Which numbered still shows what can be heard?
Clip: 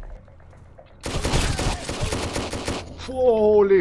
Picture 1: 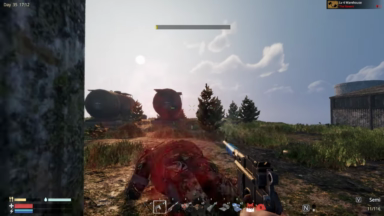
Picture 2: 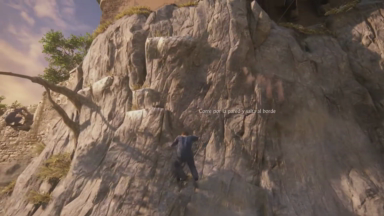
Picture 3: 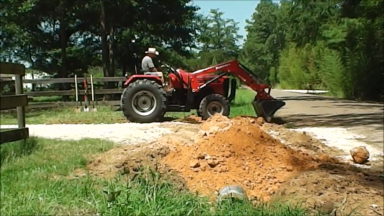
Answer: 1